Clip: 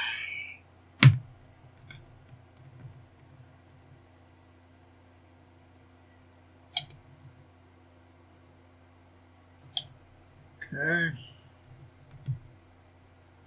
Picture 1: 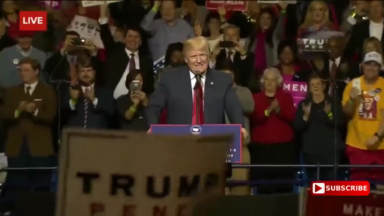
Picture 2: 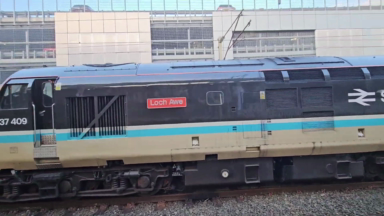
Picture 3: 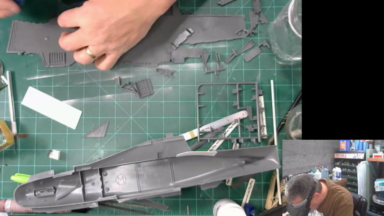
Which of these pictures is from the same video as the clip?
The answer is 3